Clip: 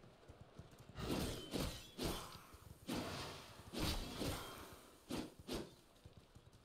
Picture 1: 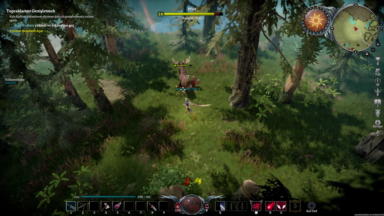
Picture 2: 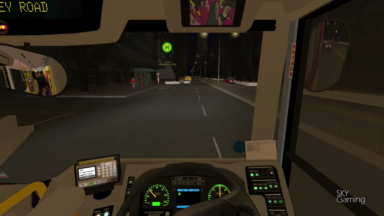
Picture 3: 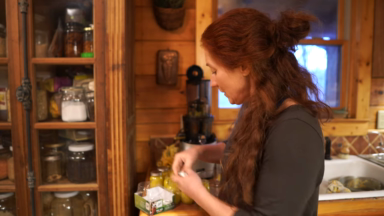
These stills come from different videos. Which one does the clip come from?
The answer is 1